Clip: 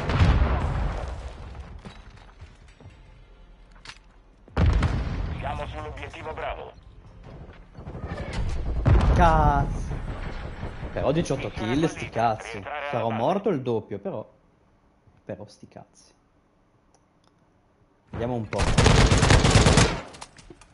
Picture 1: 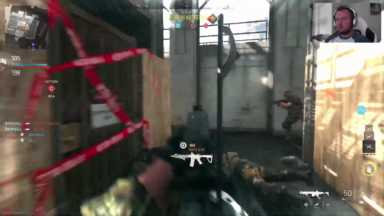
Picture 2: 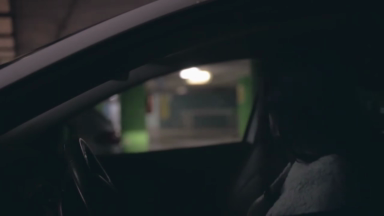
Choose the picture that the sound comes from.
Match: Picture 1